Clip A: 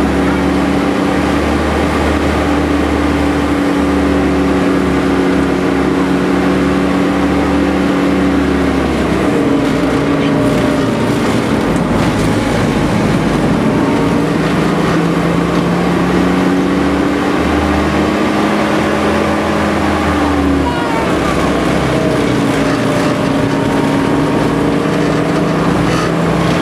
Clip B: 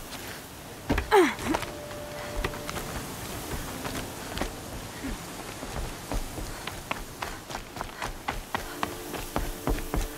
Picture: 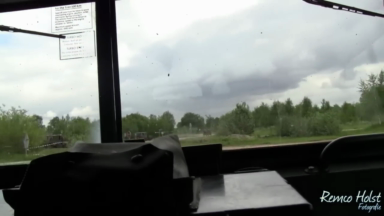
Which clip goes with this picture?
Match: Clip A